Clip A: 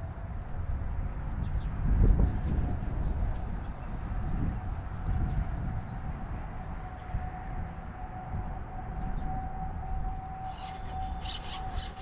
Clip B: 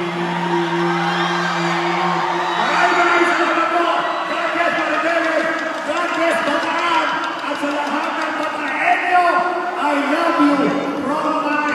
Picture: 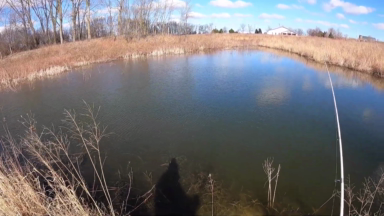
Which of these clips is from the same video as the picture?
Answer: A